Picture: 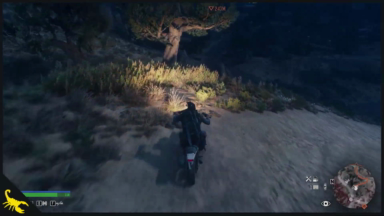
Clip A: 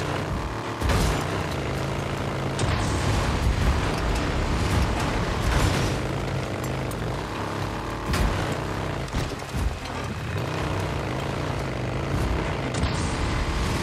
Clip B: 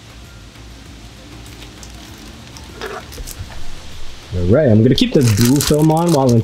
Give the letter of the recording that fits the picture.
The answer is A